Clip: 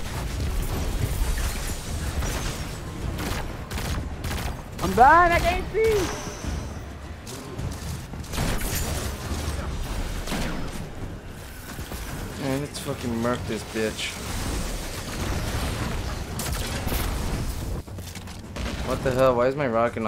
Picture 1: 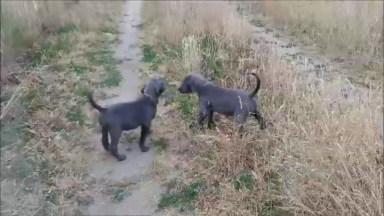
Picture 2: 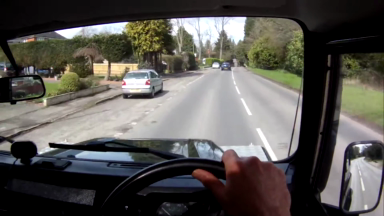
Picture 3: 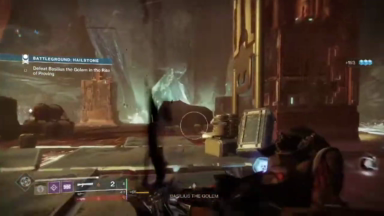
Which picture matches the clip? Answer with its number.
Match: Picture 3